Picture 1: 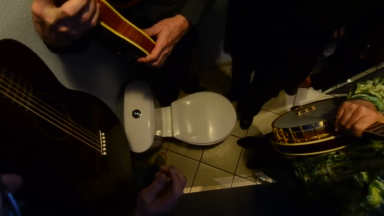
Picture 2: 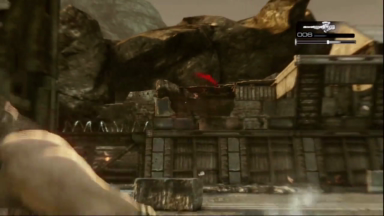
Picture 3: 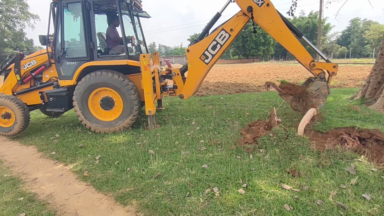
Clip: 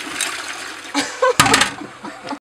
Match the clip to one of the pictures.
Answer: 1